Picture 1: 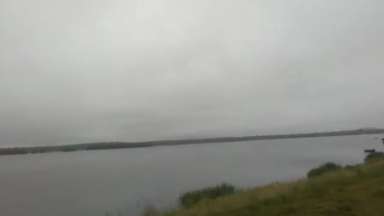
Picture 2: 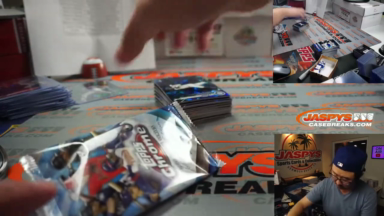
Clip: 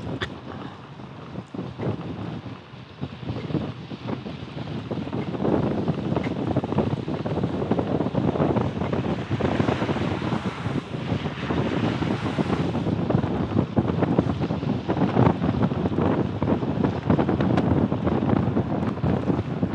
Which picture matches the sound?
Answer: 1